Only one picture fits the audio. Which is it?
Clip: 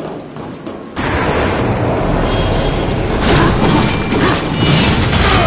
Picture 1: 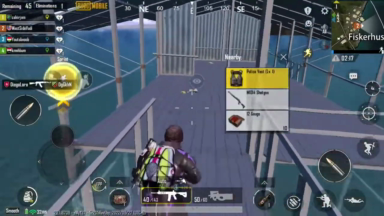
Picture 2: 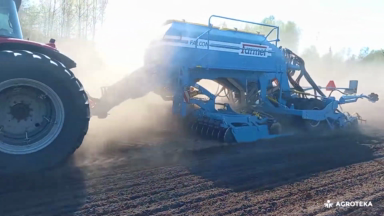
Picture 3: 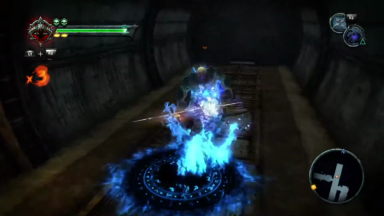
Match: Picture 3